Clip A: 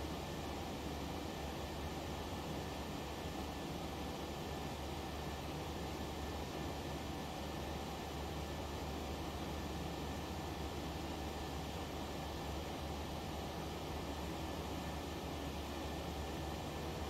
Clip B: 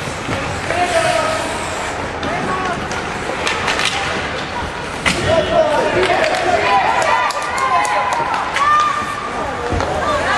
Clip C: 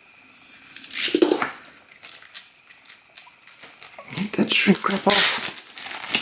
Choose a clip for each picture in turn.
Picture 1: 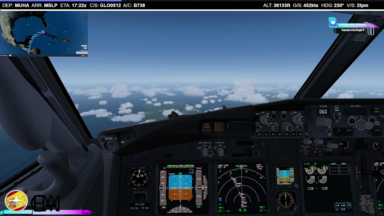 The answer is A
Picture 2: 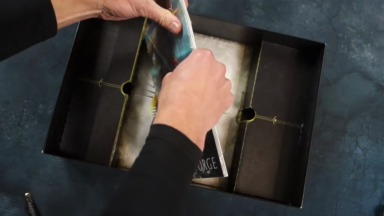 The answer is C